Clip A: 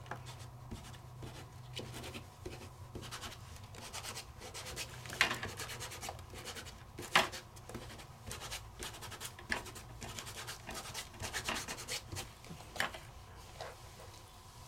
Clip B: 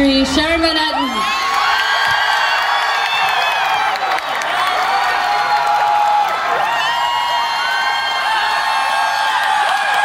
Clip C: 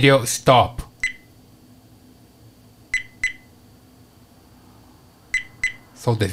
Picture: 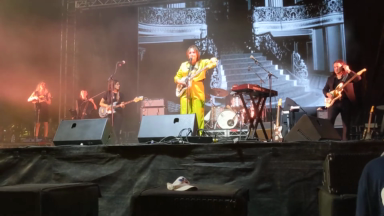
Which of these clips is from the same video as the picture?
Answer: B